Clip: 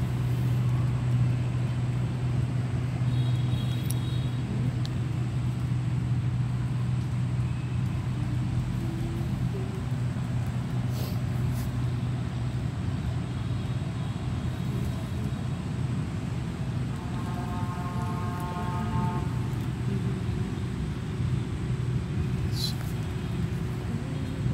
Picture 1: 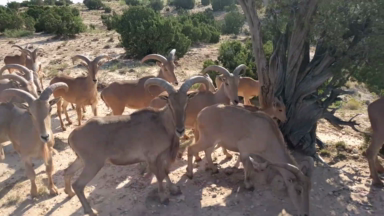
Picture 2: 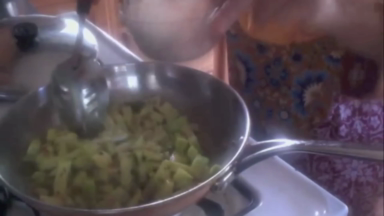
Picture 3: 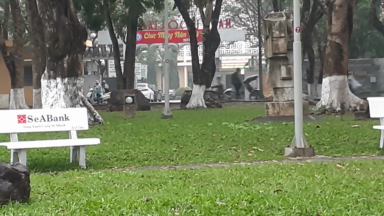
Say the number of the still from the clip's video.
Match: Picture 3